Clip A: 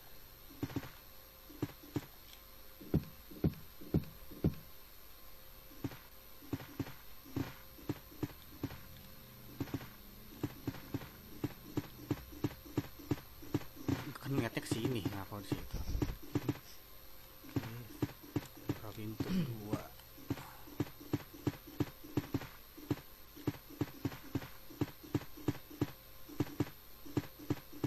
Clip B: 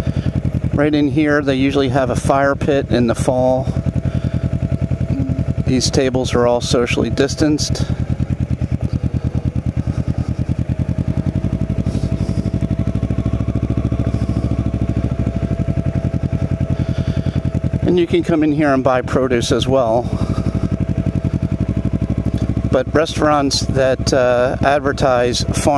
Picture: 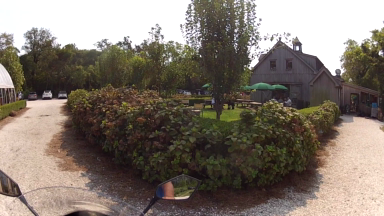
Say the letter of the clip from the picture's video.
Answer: B